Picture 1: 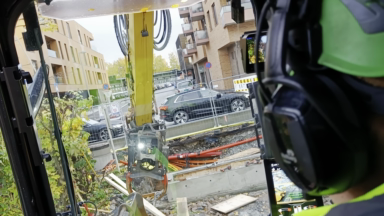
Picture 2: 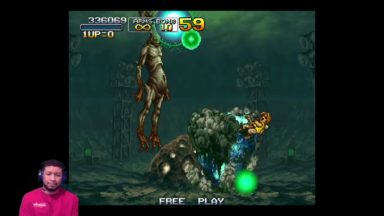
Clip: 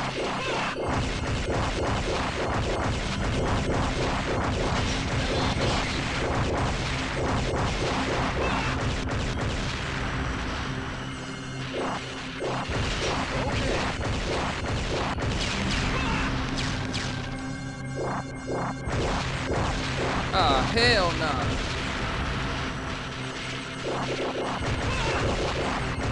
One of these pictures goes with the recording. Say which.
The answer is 2